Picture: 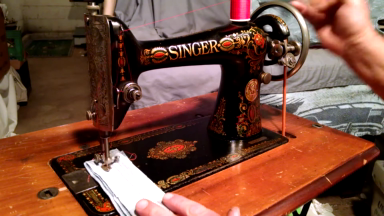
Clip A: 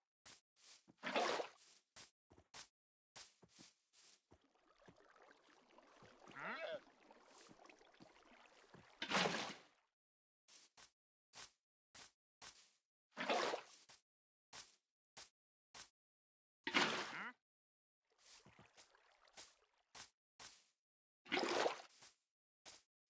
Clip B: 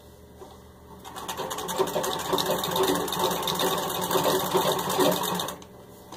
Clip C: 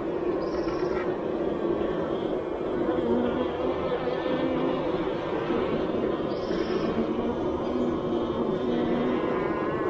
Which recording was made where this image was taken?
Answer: B